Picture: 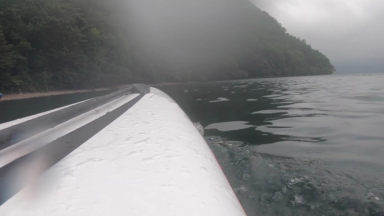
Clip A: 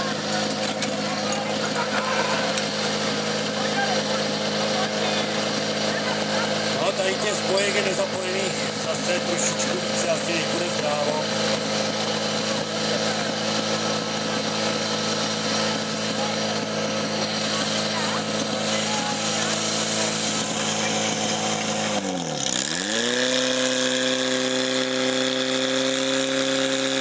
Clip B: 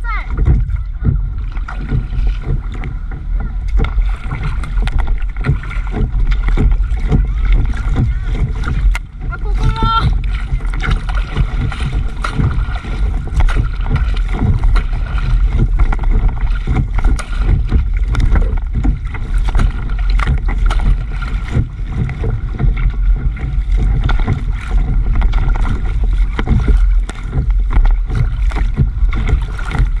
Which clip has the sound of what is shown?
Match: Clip B